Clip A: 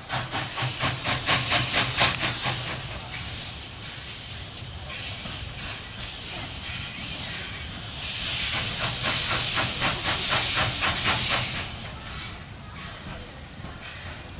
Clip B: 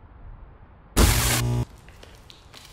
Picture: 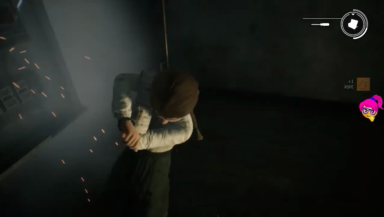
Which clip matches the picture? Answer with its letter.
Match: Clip B